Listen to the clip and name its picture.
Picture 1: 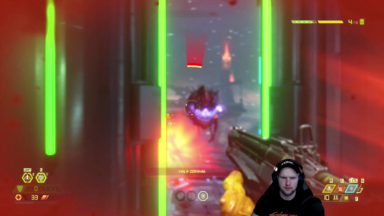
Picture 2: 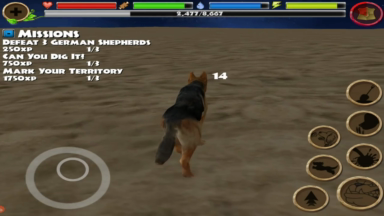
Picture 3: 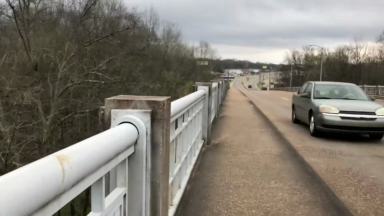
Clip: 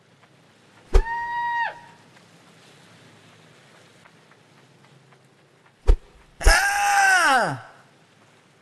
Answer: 2